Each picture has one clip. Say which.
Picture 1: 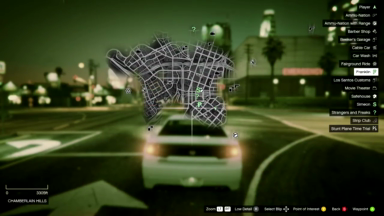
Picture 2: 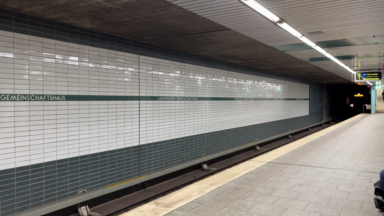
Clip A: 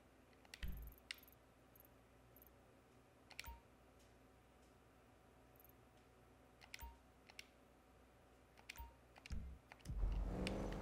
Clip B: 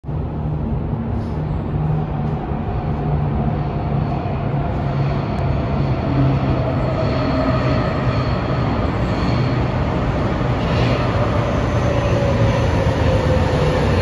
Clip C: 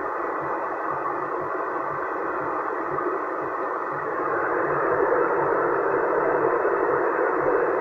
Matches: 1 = A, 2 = B